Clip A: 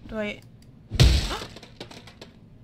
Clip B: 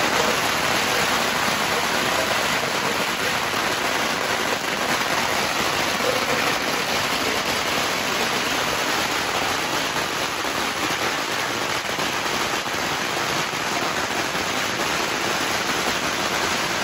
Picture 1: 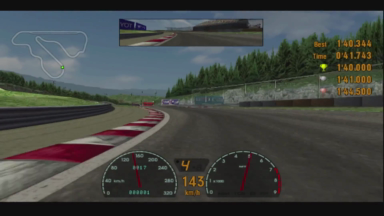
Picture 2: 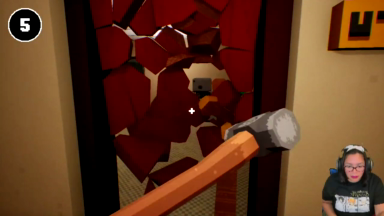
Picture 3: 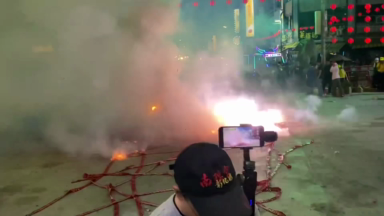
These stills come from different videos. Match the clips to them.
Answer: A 2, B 3